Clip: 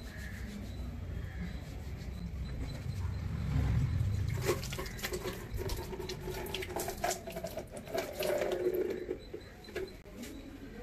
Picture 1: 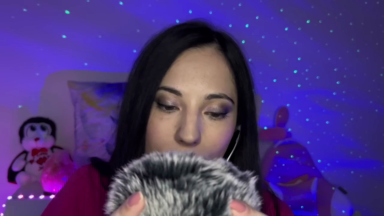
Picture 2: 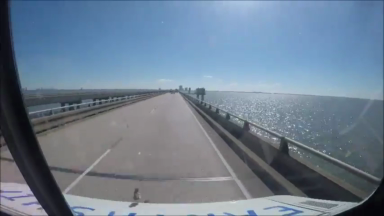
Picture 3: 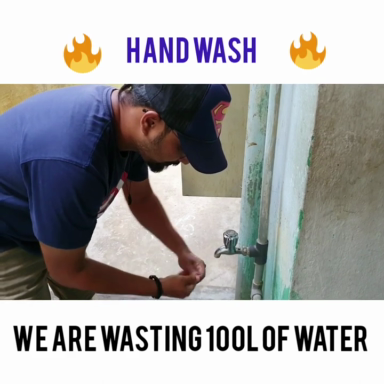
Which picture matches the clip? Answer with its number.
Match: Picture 3